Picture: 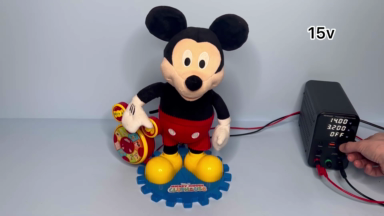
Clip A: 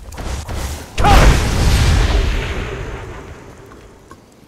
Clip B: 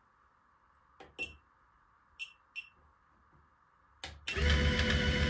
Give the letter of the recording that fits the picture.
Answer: B